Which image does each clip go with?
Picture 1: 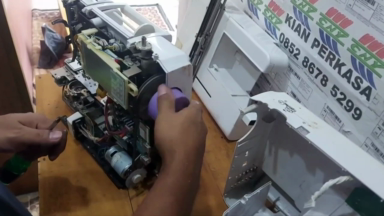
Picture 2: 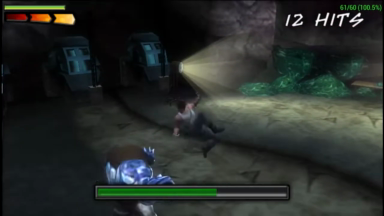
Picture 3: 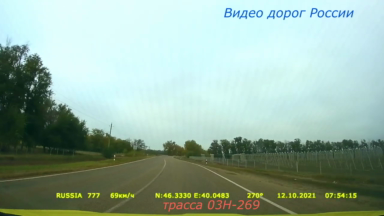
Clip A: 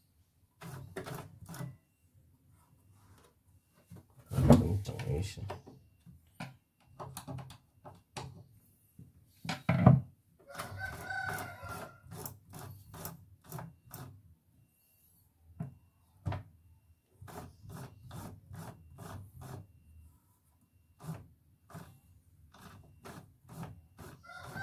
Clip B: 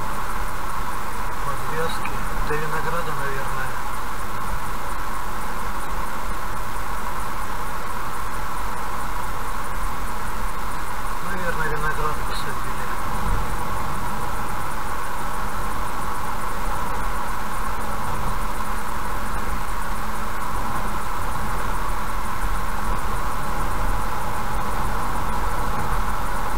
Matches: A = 1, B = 3